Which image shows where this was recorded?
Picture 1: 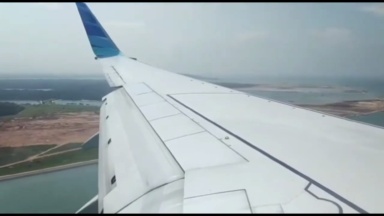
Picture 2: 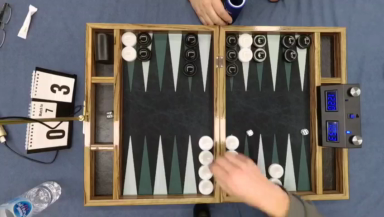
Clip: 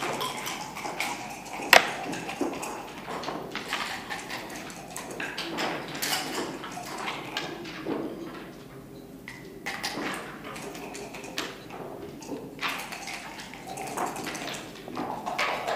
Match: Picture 2